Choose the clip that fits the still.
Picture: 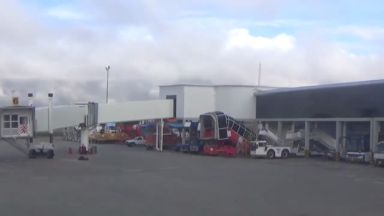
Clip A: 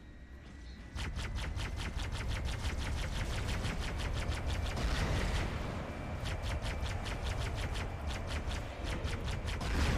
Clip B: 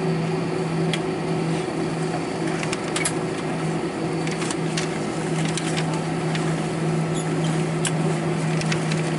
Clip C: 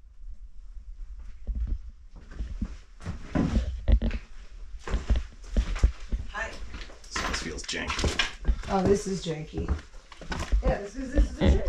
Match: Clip B